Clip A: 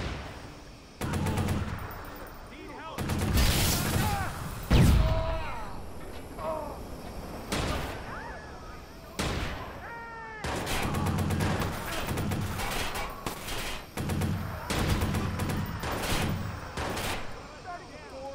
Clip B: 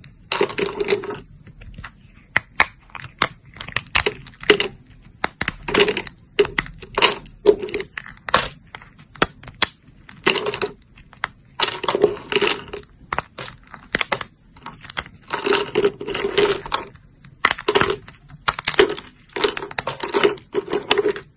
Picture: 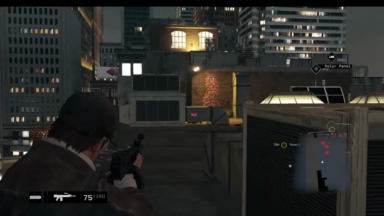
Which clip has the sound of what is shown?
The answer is A